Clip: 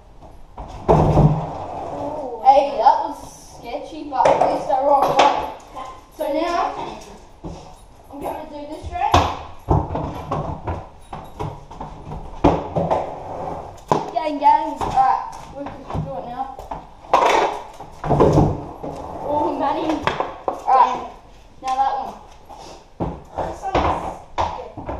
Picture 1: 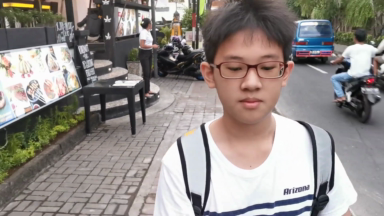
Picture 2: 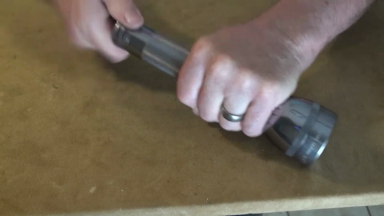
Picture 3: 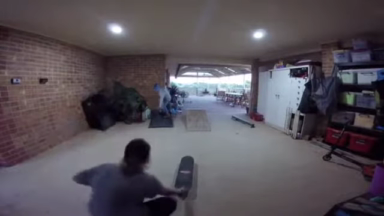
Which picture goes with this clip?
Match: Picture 3